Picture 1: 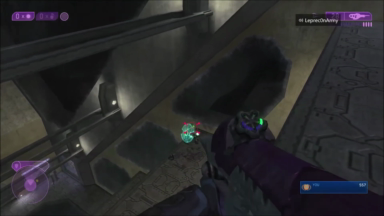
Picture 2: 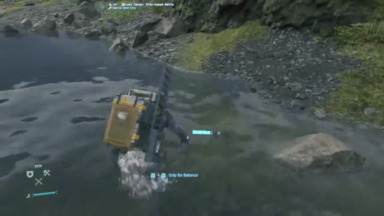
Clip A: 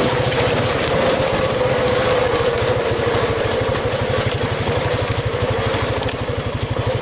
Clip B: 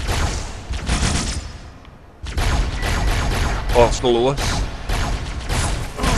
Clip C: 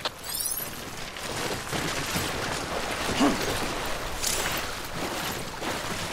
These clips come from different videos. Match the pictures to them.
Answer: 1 B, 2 C